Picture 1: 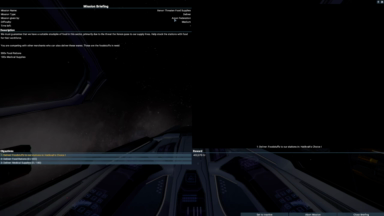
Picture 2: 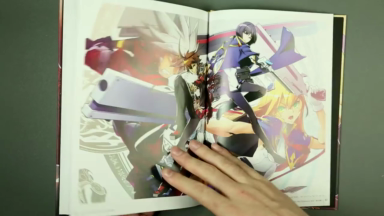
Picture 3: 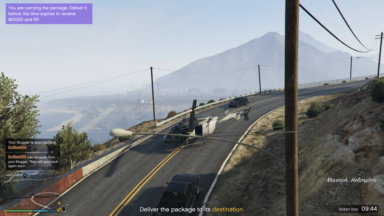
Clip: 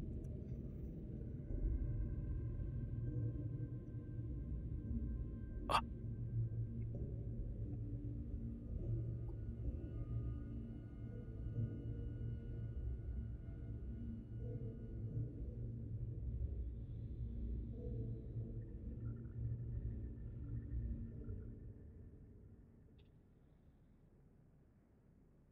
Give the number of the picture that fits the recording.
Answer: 1